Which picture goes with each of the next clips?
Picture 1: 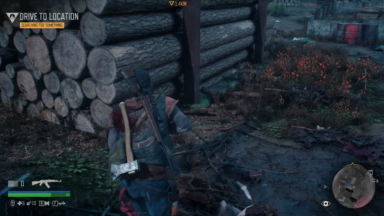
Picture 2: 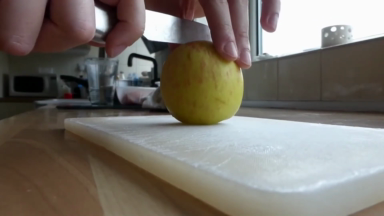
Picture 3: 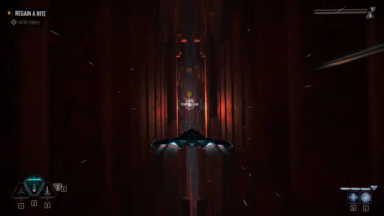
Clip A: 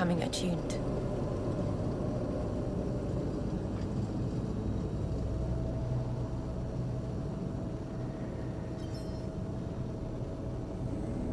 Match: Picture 3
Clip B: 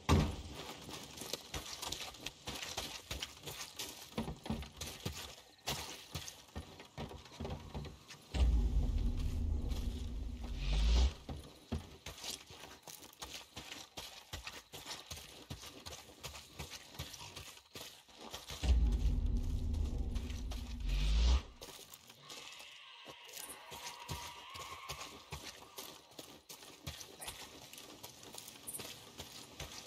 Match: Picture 1